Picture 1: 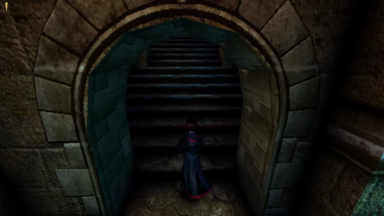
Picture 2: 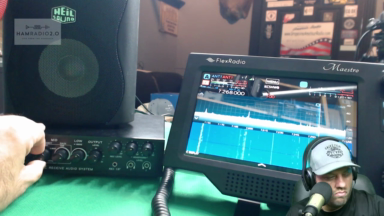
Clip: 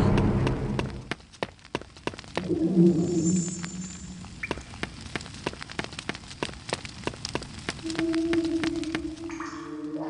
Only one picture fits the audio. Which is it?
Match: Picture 1